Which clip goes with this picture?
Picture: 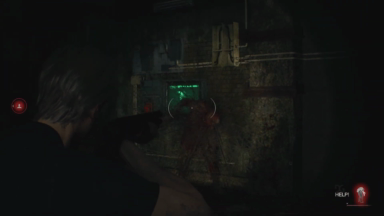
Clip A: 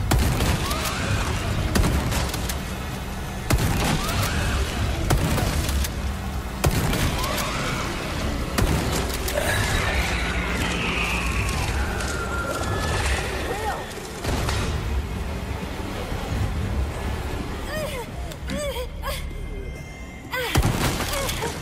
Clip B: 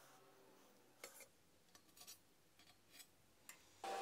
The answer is A